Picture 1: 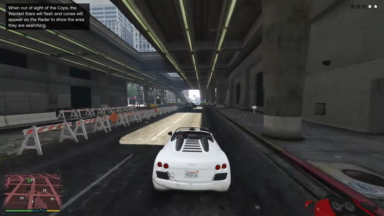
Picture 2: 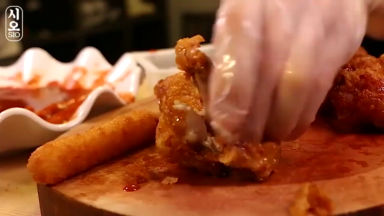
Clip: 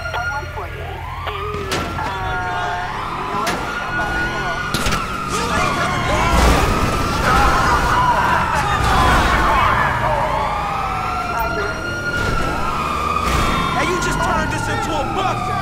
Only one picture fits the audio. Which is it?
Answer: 1